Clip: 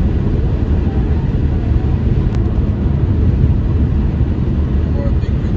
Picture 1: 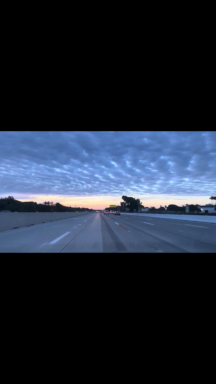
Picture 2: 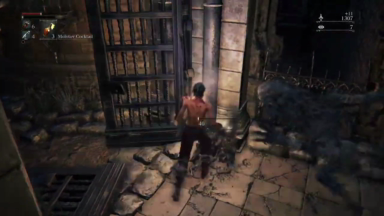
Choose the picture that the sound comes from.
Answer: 1